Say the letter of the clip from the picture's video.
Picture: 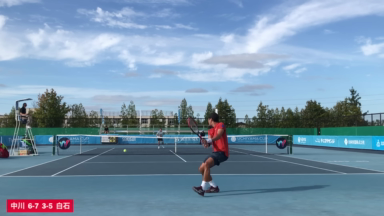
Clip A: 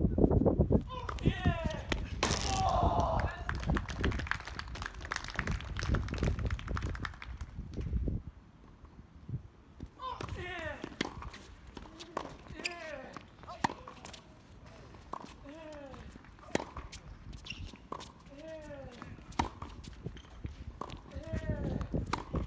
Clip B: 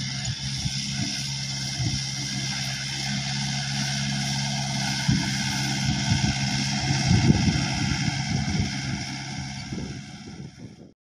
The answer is A